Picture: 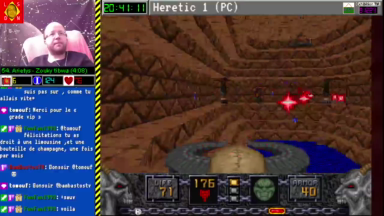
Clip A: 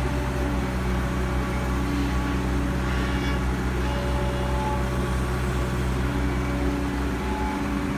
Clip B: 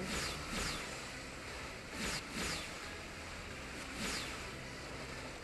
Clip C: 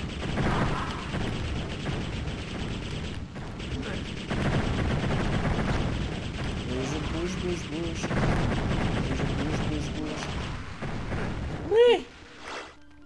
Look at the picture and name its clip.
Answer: C